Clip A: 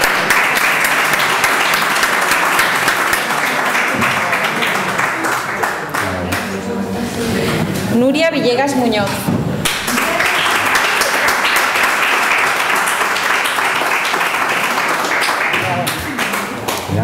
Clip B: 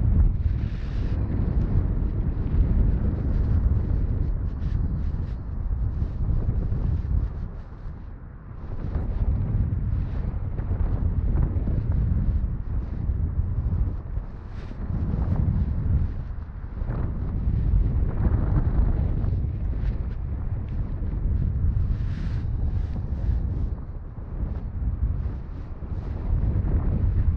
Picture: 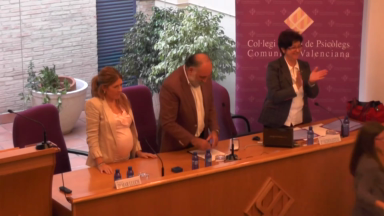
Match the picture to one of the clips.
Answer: A